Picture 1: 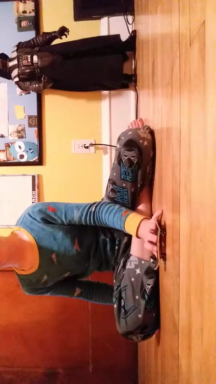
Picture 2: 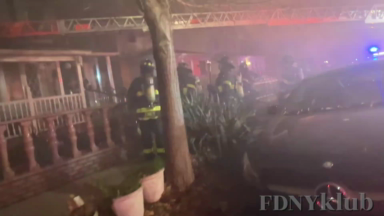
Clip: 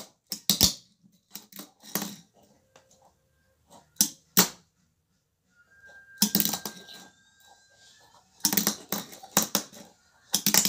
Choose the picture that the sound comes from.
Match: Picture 1